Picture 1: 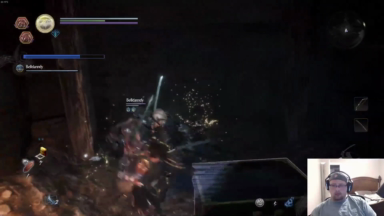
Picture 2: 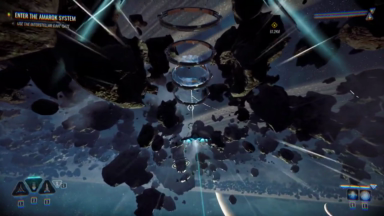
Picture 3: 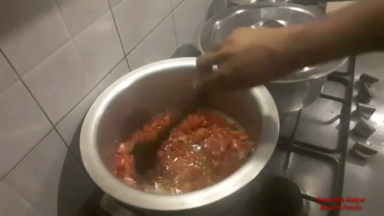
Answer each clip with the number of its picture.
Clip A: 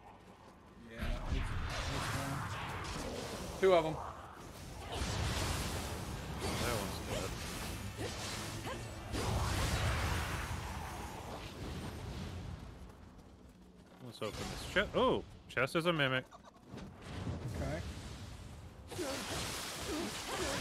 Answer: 1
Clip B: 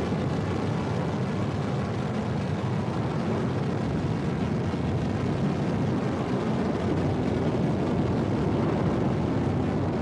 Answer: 2